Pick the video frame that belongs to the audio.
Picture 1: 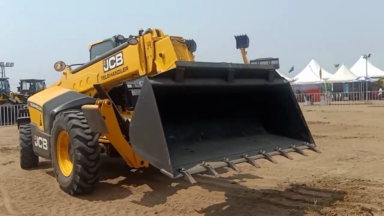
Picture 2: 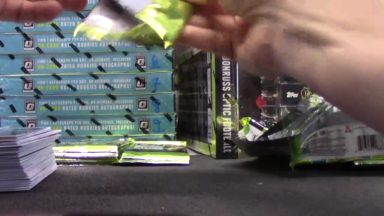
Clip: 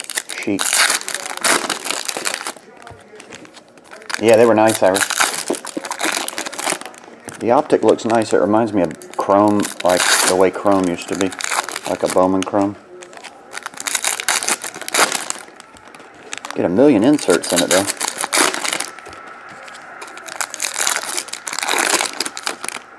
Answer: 2